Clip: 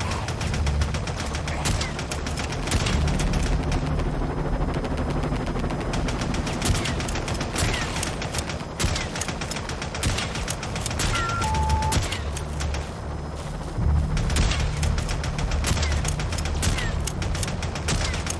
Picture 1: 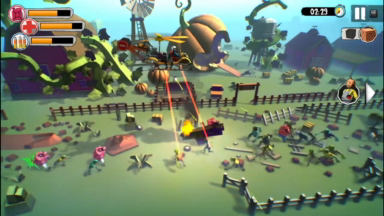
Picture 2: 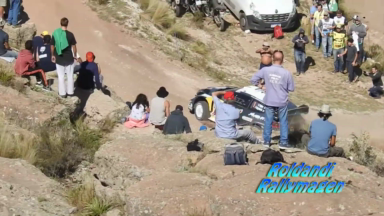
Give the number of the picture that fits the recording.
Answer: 1